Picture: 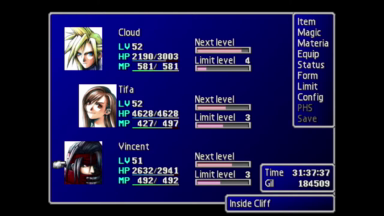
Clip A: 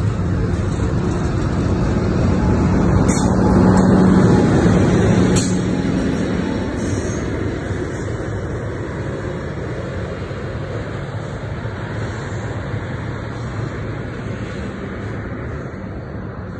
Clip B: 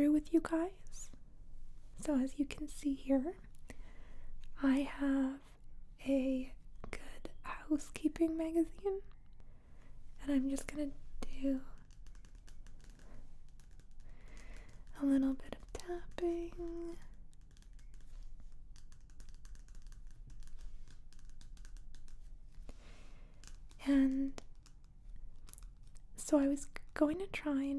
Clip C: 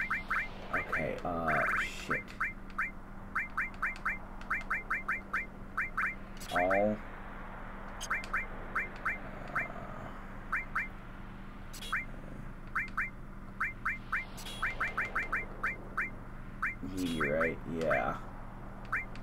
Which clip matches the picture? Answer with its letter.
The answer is C